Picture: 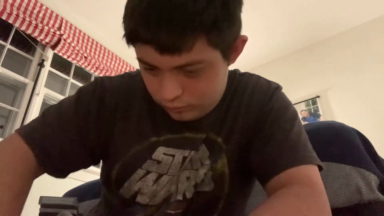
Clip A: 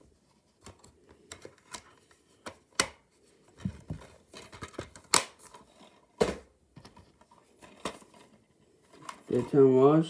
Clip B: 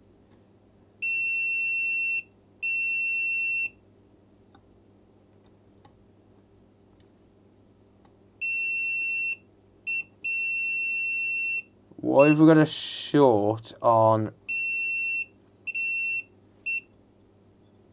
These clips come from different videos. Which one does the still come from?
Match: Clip A